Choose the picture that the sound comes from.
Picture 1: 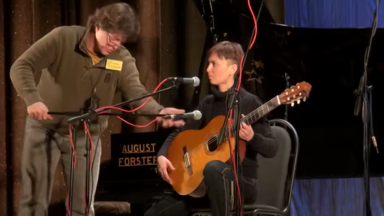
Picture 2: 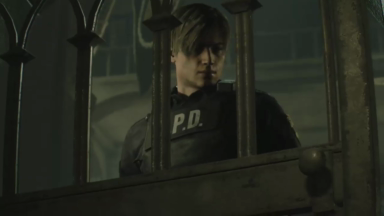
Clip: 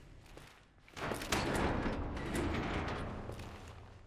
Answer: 2